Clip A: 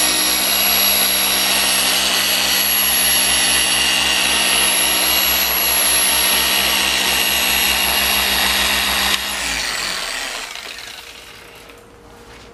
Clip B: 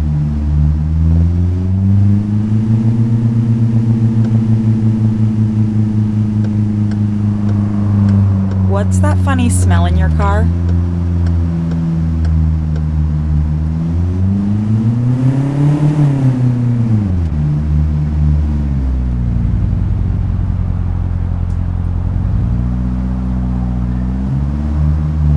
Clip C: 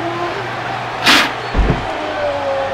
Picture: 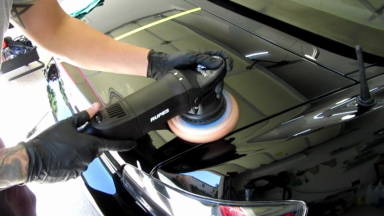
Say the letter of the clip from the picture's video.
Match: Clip A